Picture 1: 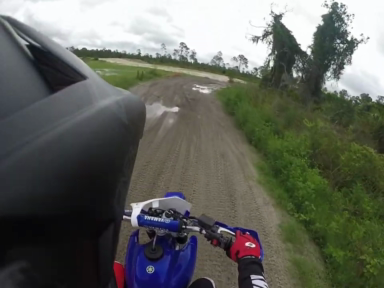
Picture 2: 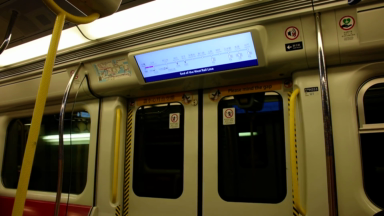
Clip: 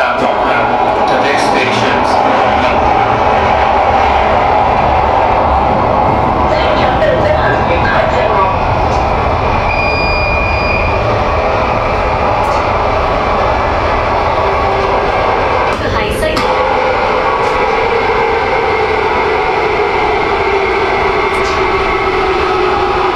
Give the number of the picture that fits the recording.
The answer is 2